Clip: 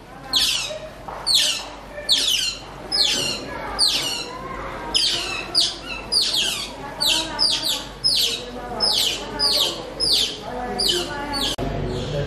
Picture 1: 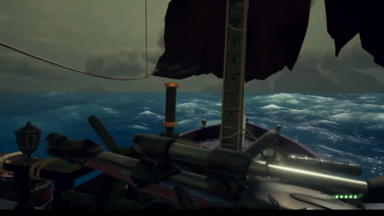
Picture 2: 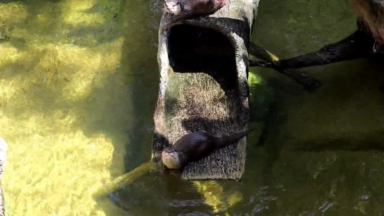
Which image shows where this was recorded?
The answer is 2